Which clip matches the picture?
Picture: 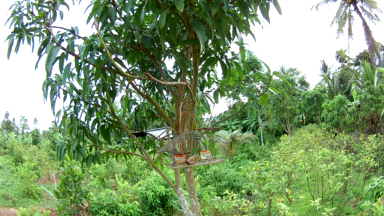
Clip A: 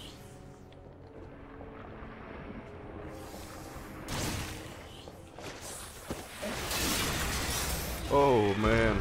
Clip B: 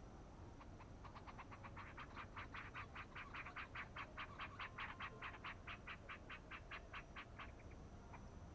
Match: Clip B